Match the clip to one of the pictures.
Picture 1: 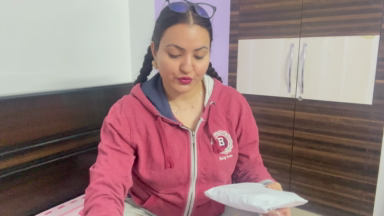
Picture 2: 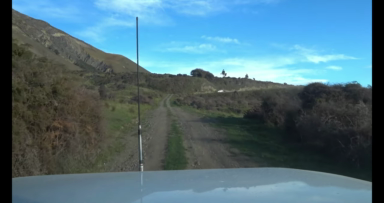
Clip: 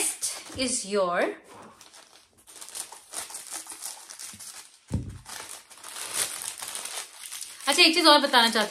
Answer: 1